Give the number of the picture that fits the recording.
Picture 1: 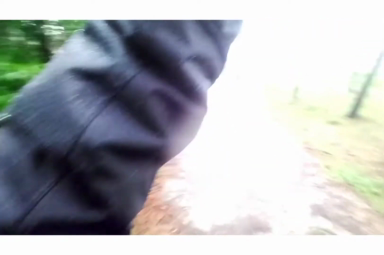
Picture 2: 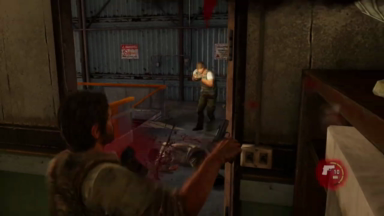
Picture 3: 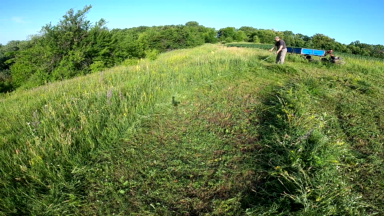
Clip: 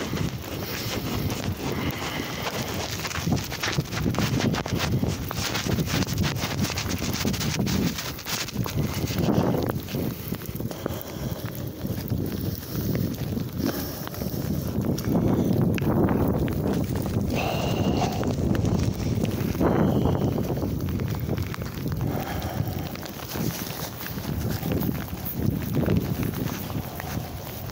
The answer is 1